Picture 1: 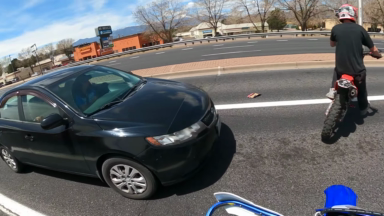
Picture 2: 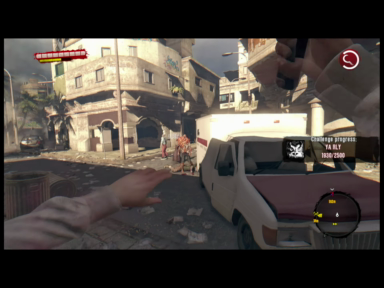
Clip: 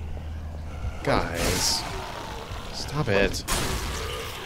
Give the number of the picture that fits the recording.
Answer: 2